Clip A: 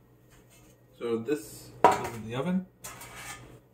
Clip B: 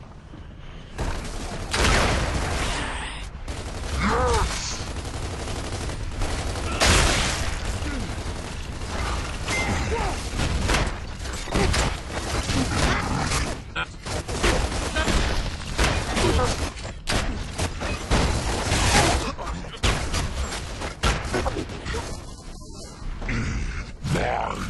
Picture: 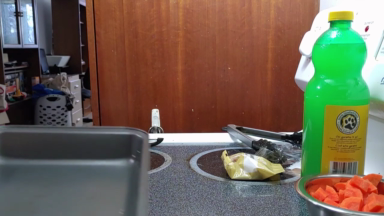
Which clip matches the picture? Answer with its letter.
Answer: A